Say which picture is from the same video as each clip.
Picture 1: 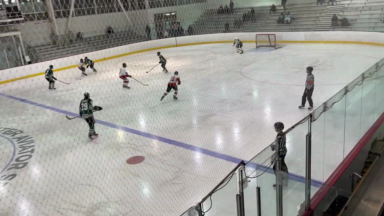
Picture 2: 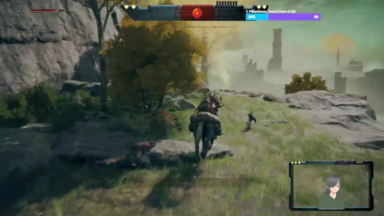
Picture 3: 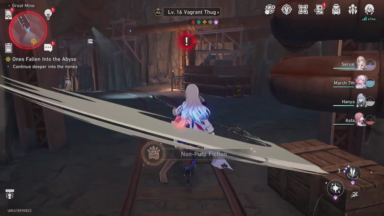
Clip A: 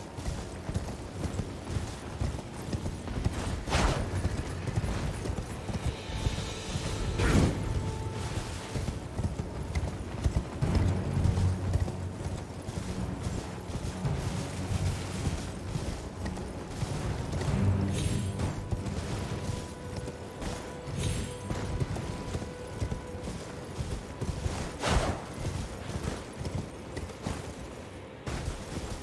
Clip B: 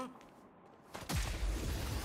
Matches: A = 2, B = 3